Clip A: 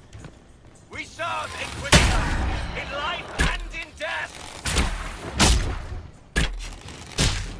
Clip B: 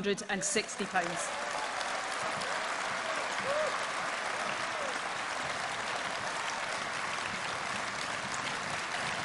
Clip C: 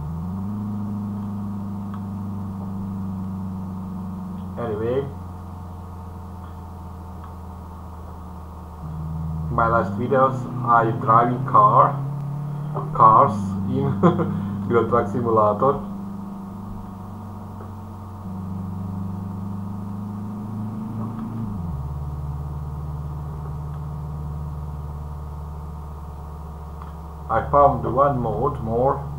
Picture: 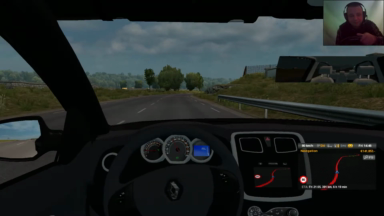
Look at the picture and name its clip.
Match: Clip C